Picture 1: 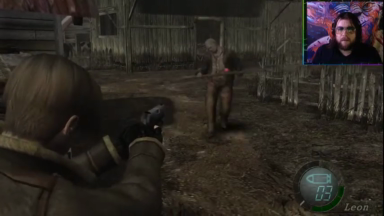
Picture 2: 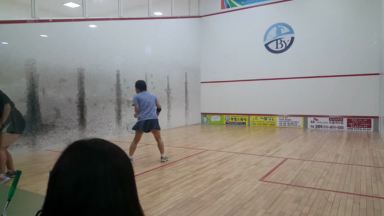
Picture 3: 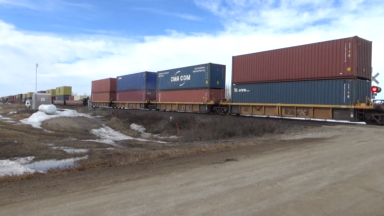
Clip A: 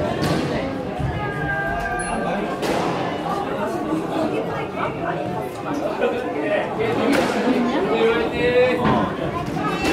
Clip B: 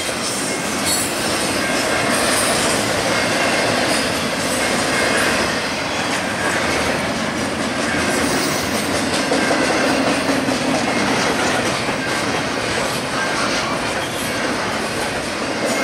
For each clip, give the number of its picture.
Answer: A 2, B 3